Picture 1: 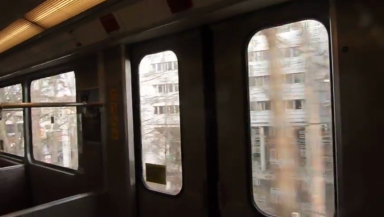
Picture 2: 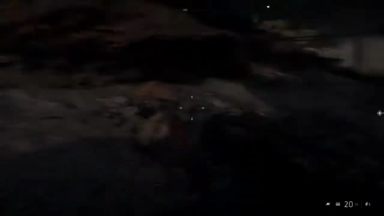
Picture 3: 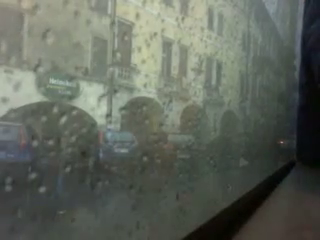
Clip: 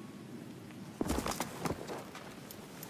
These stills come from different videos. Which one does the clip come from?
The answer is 2